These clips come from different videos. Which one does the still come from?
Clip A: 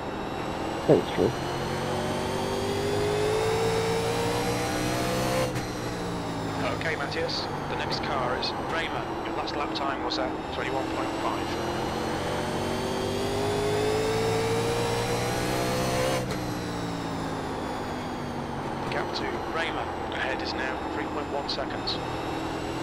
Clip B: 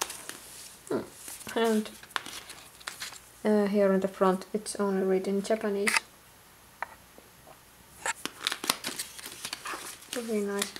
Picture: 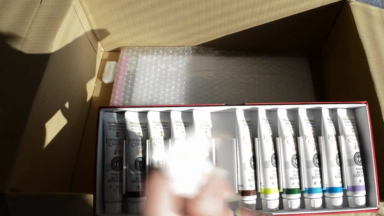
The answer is B